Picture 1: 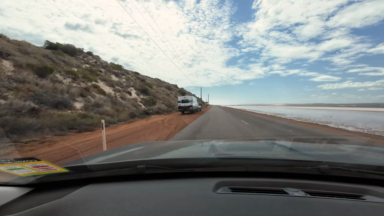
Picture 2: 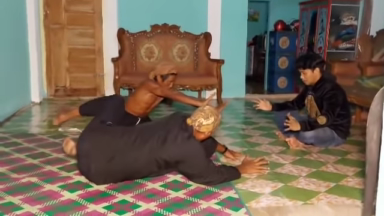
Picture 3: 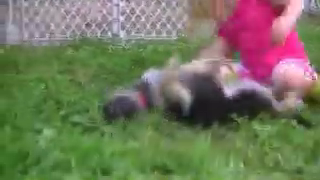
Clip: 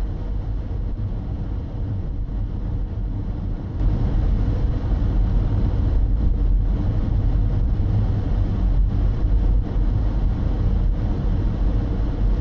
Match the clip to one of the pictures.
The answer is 1